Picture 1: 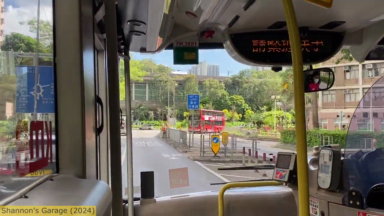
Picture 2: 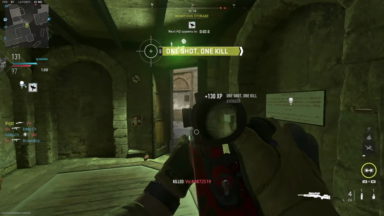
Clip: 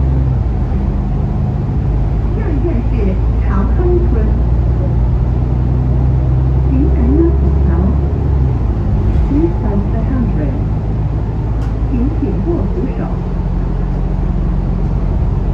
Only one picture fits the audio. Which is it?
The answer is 1